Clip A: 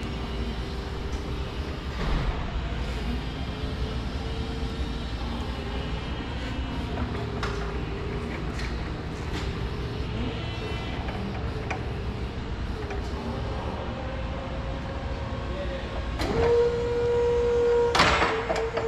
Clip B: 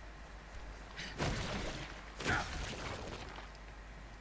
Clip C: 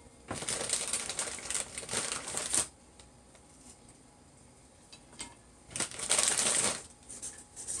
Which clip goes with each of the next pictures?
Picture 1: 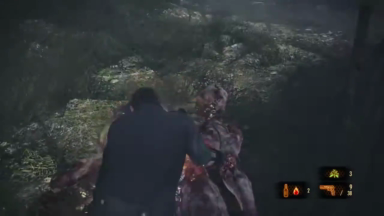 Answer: B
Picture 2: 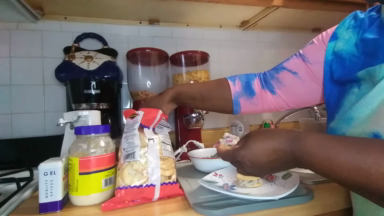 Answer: C